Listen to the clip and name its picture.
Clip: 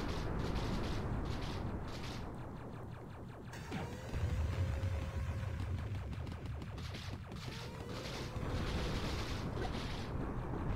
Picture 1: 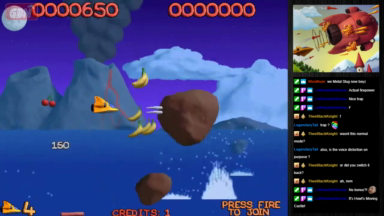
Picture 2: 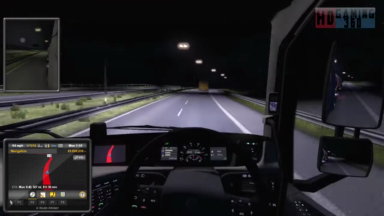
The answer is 1